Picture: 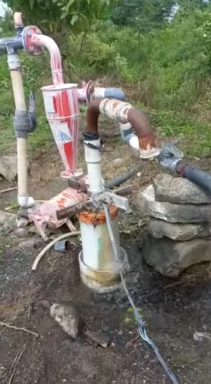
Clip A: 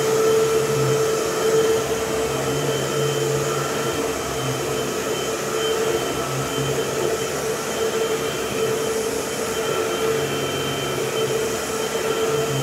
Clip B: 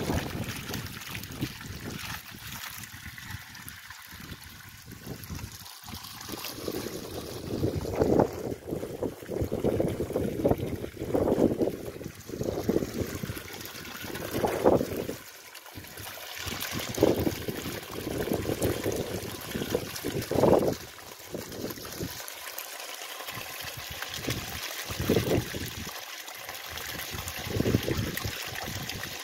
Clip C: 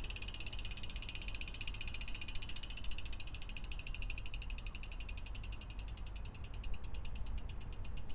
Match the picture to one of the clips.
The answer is B